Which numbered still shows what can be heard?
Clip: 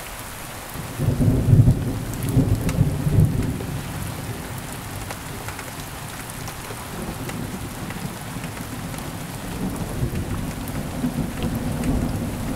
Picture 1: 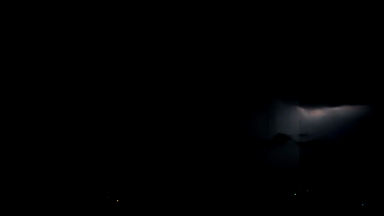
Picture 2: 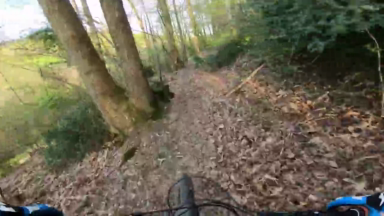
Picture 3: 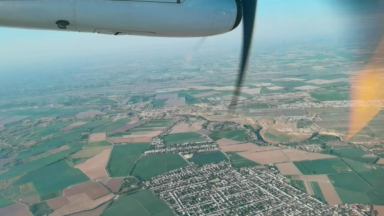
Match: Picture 1